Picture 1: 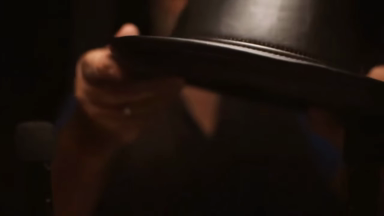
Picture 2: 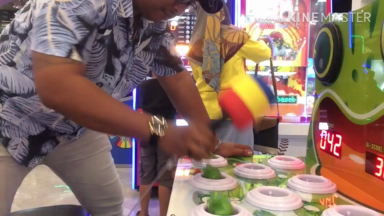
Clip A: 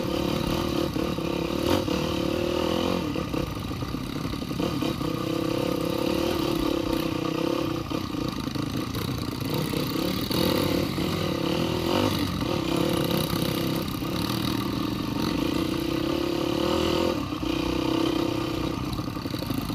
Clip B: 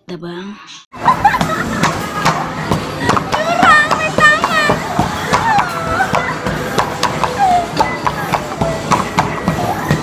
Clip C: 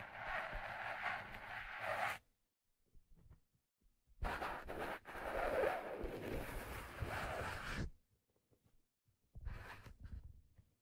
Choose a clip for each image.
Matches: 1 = C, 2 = B